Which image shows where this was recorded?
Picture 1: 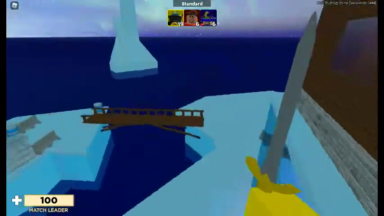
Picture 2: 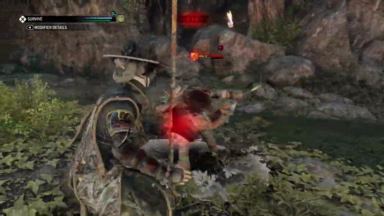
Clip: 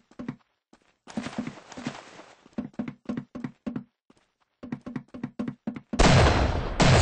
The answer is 1